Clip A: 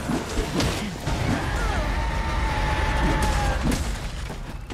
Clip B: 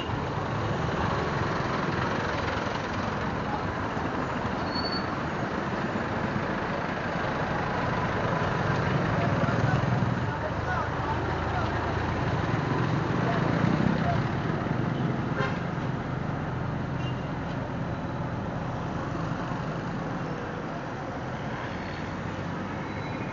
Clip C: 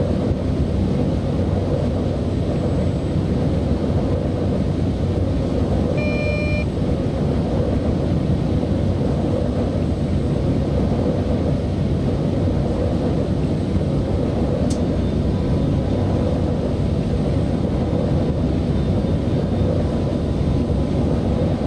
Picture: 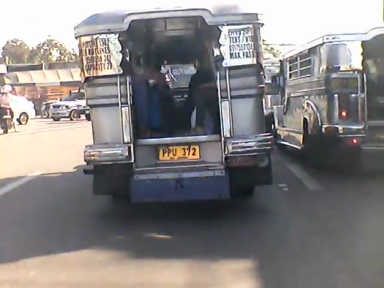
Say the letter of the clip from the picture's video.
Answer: B